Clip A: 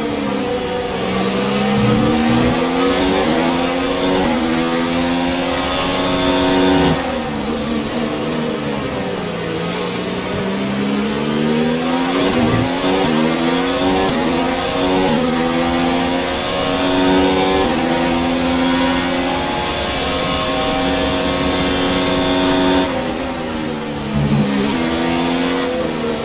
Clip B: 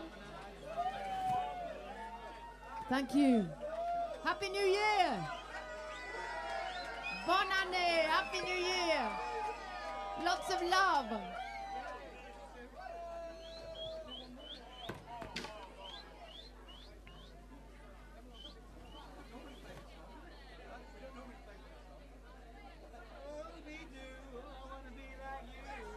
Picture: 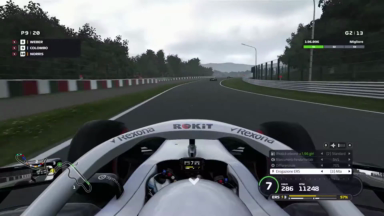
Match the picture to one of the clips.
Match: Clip A